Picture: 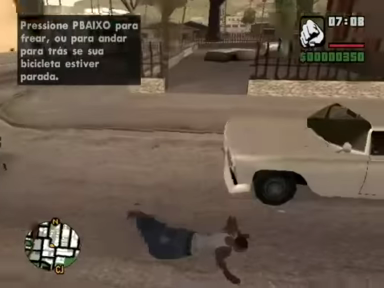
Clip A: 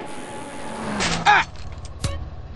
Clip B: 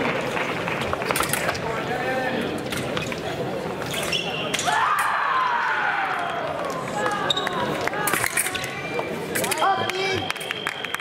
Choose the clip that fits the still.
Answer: A